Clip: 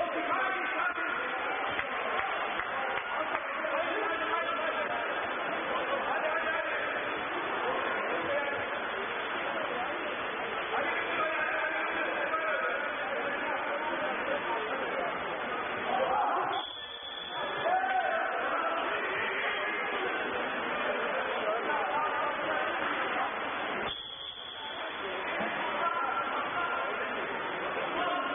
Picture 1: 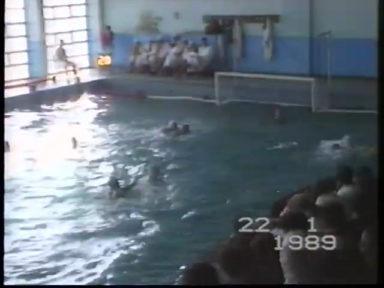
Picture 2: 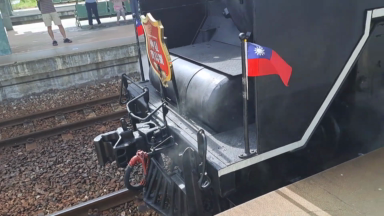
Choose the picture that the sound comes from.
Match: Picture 1